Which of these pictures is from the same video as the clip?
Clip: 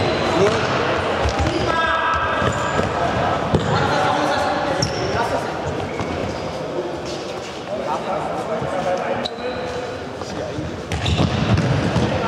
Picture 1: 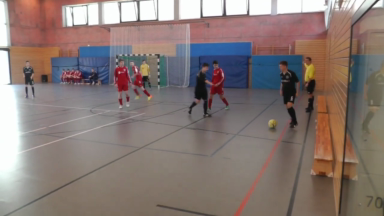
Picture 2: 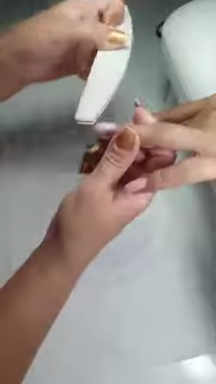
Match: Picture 1